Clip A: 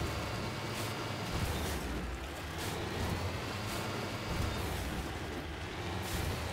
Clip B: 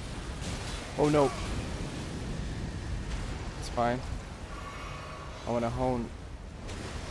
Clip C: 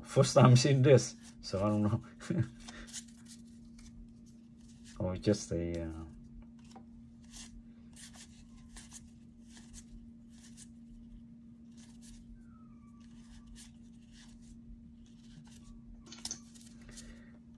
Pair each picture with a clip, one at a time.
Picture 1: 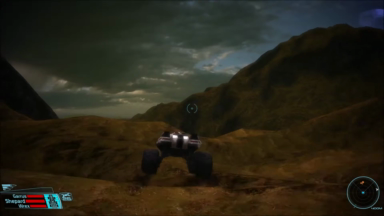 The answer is A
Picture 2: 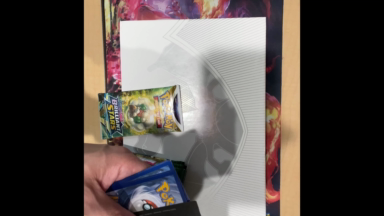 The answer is C